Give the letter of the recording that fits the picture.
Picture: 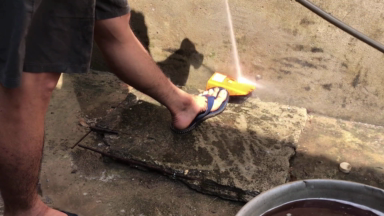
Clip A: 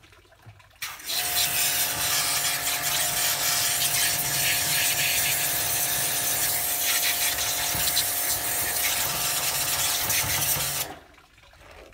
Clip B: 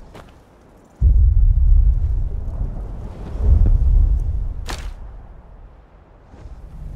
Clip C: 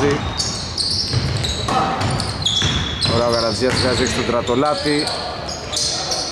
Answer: A